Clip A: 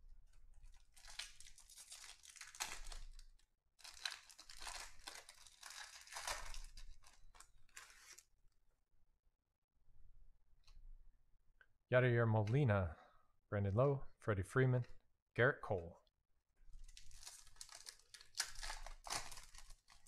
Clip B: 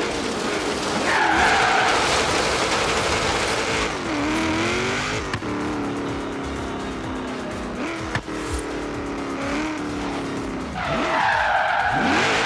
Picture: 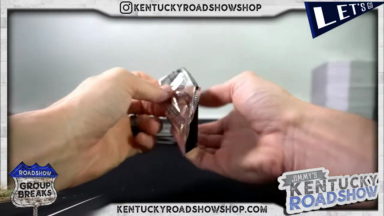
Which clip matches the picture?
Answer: A